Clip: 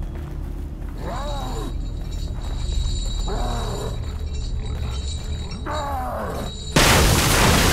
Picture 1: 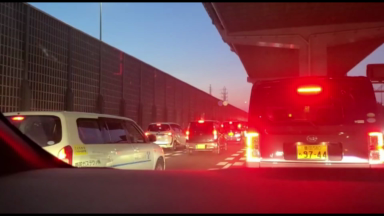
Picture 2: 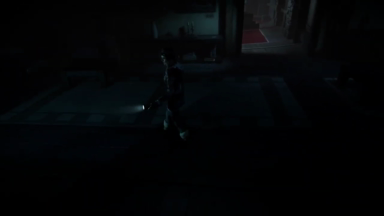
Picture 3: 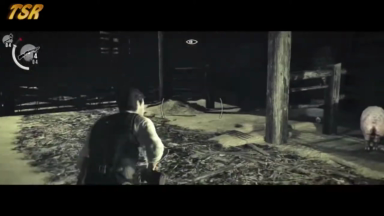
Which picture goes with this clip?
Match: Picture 3